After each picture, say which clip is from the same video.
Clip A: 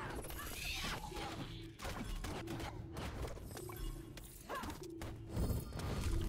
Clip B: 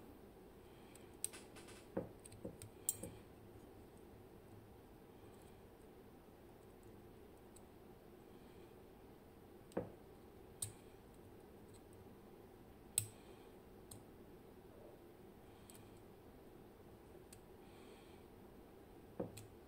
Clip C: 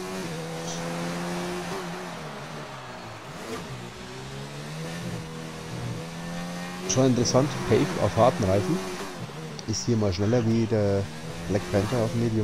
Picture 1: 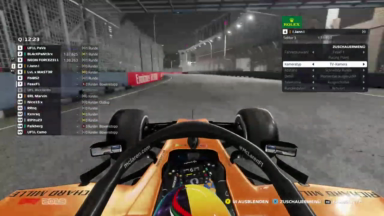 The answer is C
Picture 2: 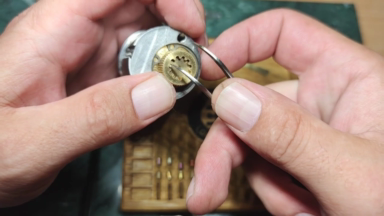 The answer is B